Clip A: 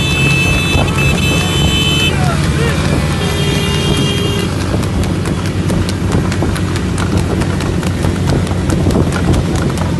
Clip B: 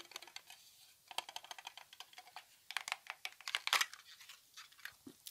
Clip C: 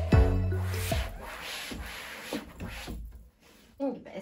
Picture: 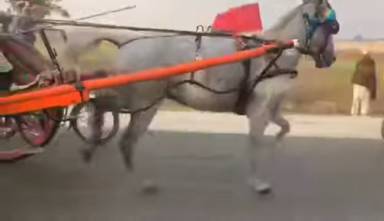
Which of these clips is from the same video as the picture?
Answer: A